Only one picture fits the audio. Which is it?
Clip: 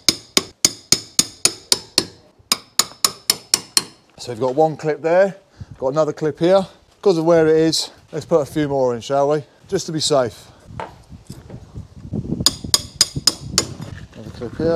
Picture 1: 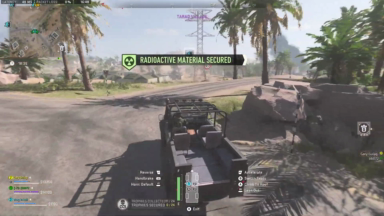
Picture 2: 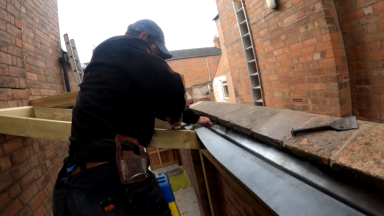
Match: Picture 2